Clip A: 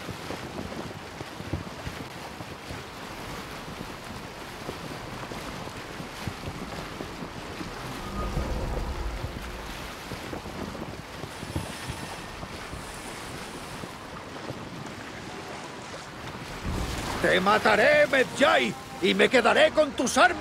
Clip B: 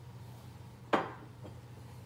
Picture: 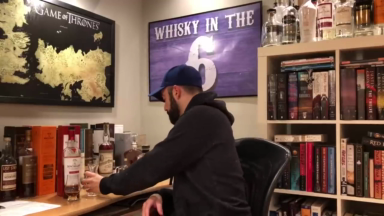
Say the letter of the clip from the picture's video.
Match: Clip B